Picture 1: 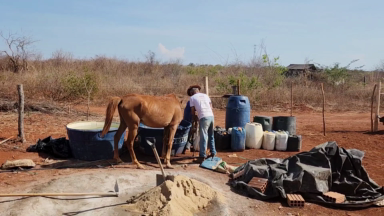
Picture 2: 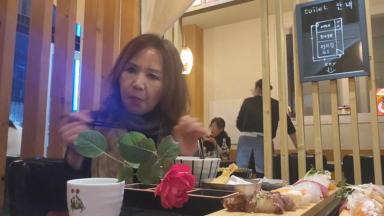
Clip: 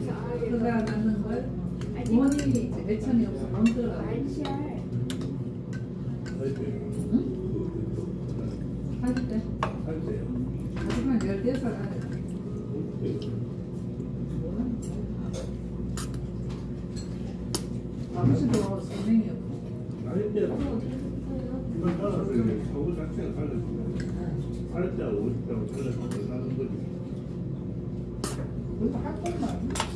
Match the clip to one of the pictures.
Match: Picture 2